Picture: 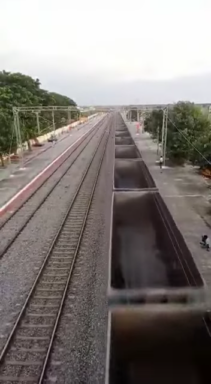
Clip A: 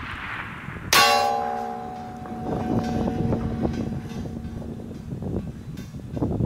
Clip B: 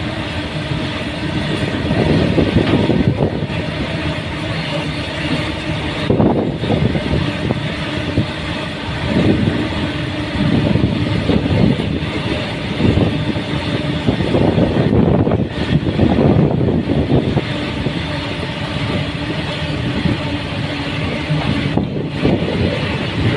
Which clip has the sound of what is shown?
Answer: B